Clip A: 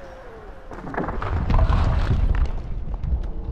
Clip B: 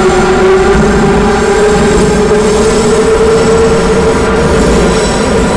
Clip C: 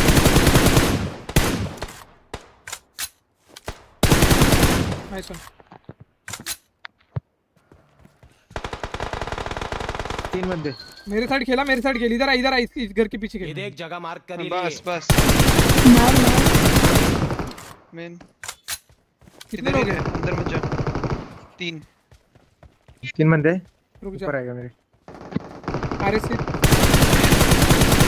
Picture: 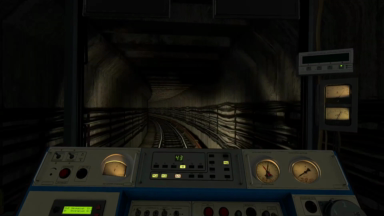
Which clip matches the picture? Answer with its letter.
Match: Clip B